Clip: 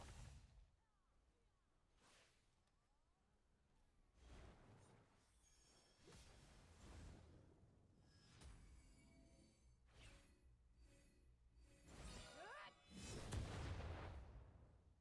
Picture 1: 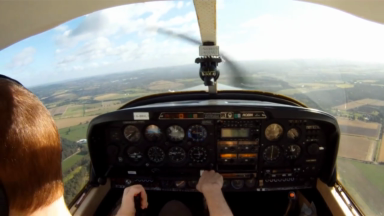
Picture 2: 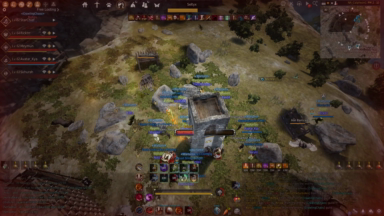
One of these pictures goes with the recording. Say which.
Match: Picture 2